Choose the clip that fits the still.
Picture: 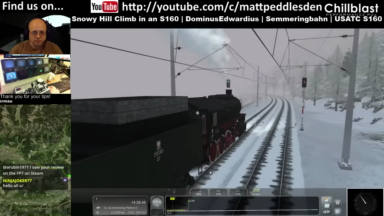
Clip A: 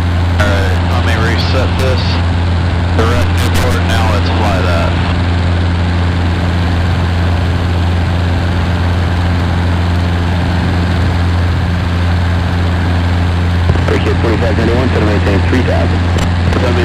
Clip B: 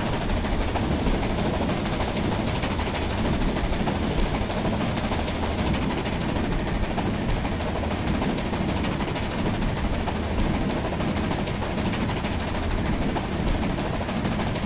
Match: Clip B